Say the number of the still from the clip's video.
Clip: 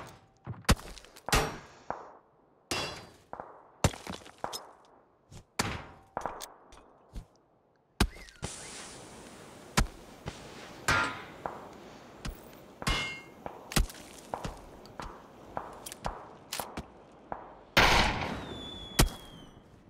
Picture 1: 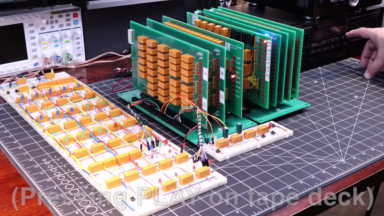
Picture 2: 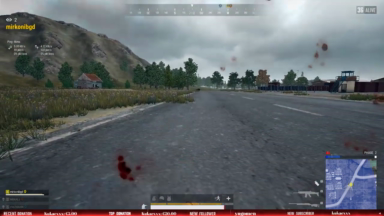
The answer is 2